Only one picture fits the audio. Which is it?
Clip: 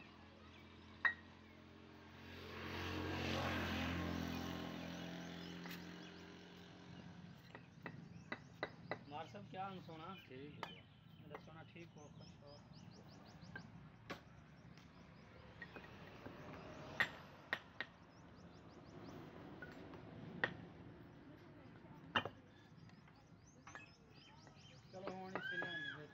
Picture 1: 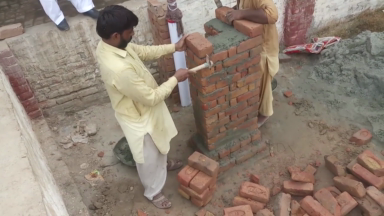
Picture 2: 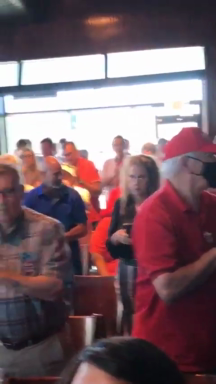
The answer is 1